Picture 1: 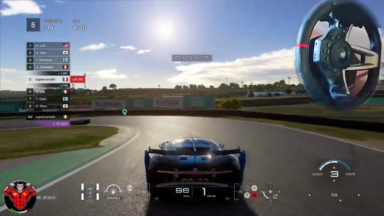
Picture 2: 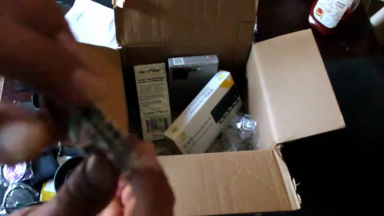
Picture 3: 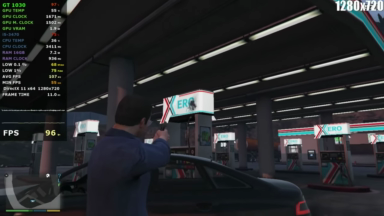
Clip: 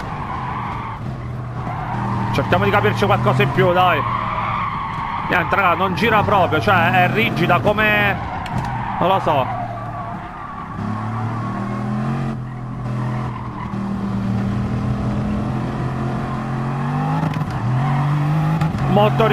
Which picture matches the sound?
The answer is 1